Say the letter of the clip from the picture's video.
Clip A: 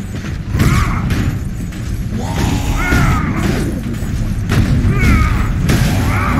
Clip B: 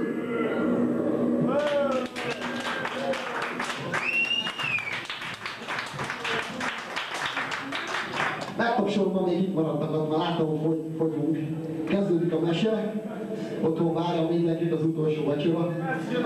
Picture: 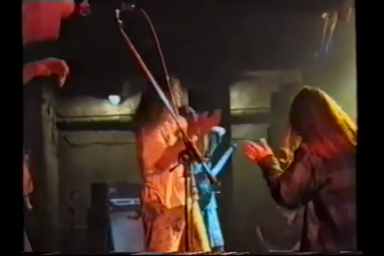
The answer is B